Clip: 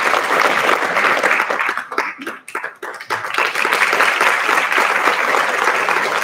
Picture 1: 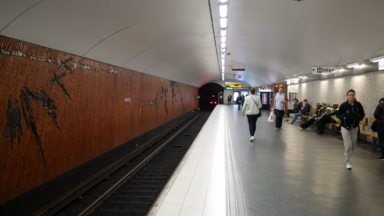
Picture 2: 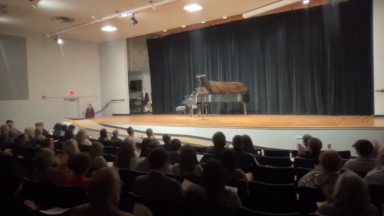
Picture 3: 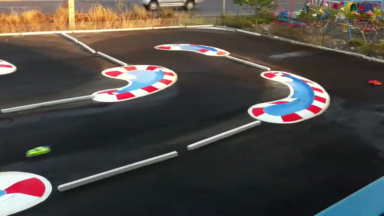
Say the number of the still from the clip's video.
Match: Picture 2